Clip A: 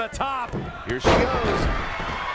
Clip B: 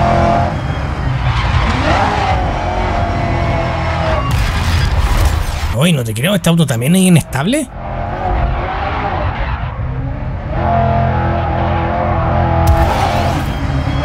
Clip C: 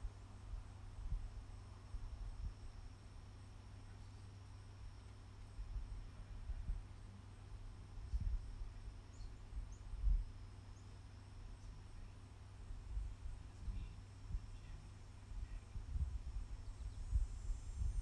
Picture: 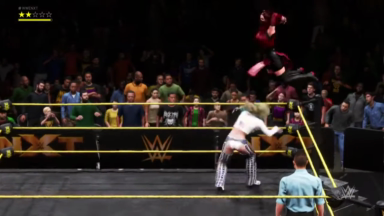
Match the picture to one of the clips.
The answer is A